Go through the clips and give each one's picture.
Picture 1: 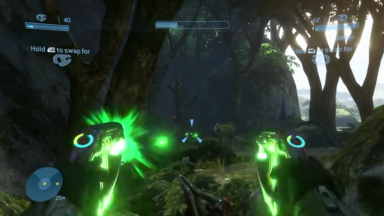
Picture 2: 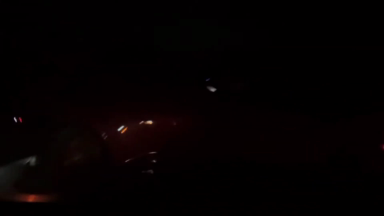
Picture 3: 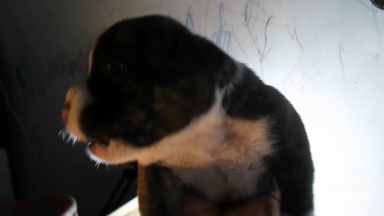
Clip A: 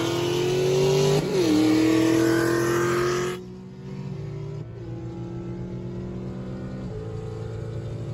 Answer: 2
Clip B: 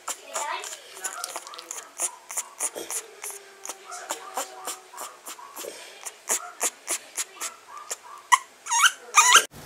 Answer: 3